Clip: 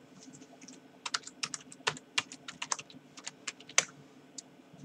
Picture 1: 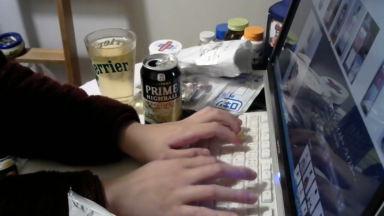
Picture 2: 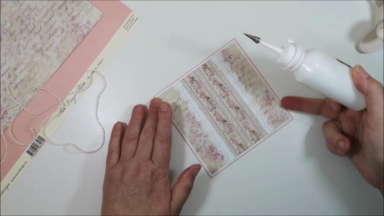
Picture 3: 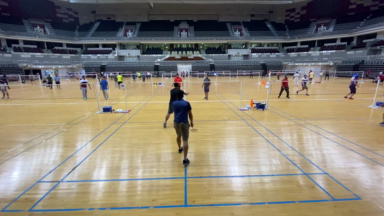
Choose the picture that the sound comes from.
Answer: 1